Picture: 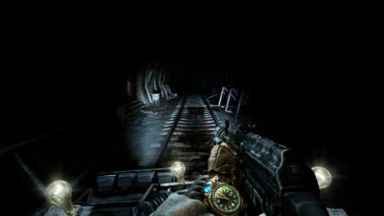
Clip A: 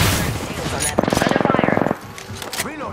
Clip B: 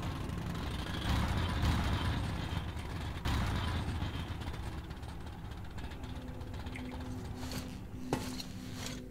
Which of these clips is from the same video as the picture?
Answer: B